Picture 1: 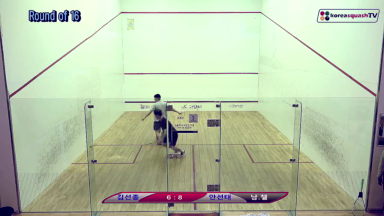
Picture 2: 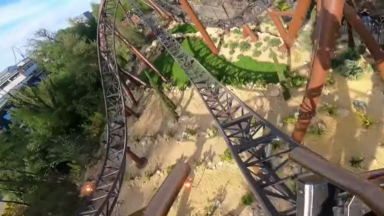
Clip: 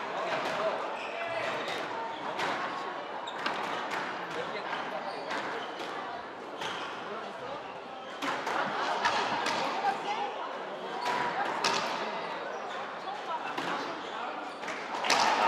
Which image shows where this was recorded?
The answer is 1